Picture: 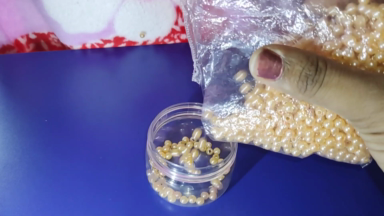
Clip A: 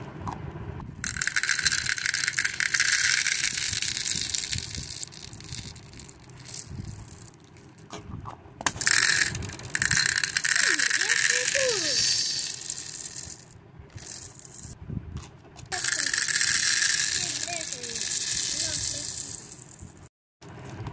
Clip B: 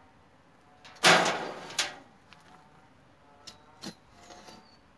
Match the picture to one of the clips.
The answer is A